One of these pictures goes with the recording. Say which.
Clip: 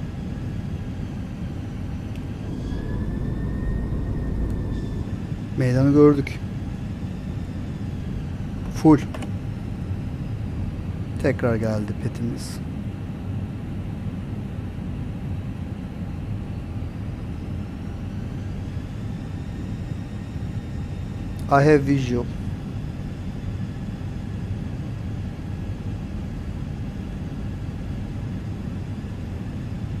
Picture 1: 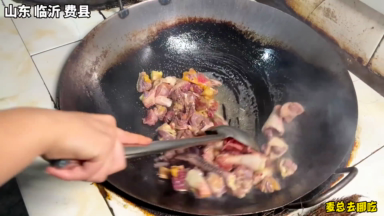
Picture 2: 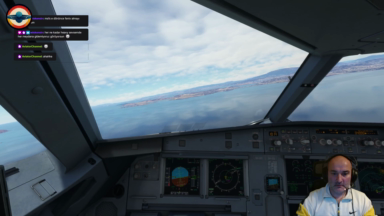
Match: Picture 2